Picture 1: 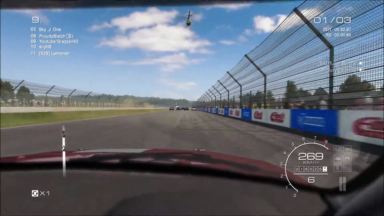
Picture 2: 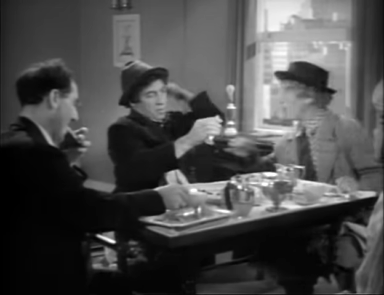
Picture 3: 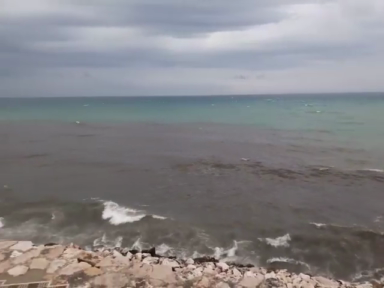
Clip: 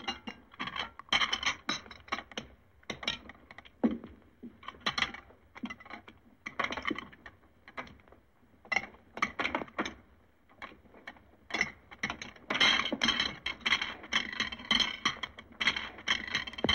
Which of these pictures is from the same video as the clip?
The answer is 2